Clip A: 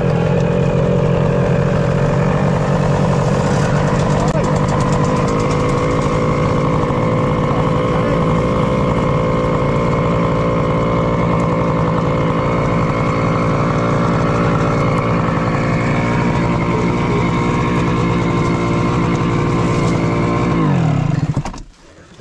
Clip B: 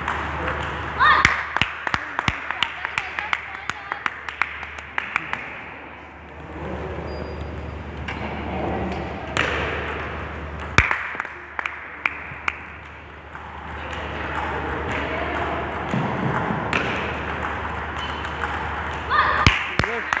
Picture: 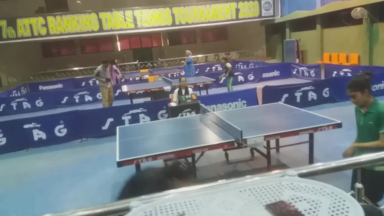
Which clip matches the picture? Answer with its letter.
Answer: B